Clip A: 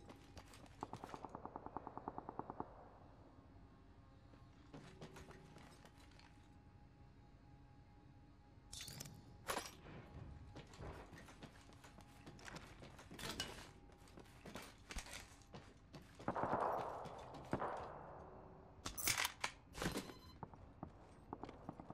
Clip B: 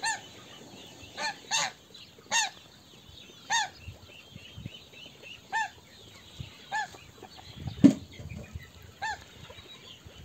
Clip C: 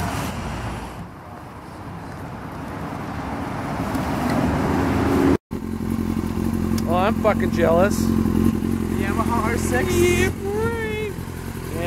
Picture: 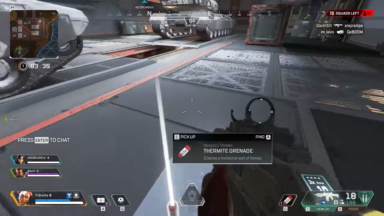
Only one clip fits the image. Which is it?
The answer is A